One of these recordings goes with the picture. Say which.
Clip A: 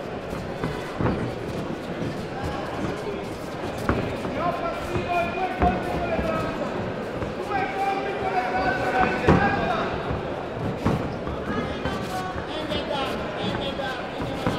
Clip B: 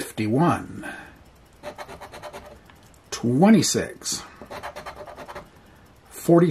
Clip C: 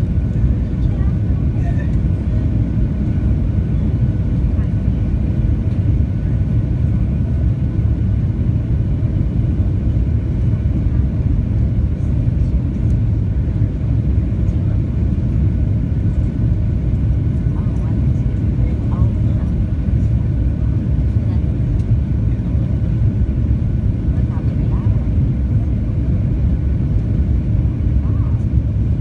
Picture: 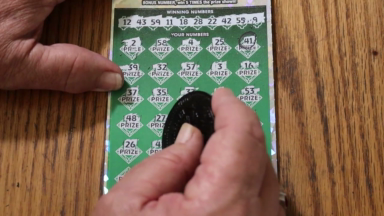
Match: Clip B